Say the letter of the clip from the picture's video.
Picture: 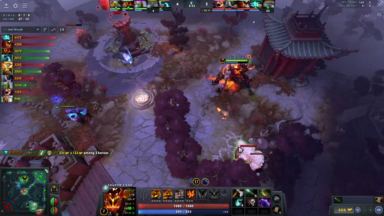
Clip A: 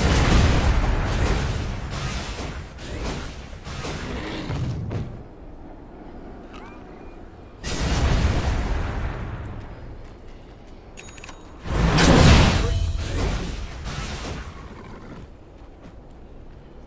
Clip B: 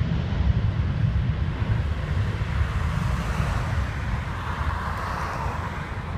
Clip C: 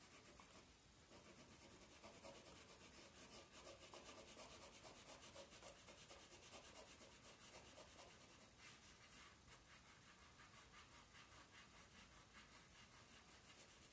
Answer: A